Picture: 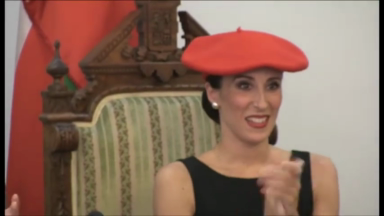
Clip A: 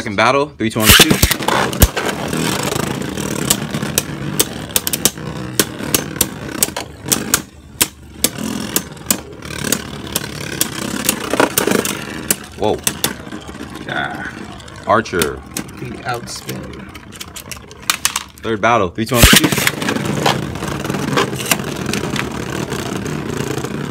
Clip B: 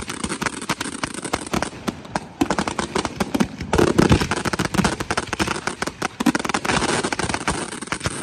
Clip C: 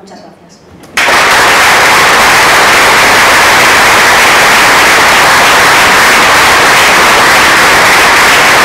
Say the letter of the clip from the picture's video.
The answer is C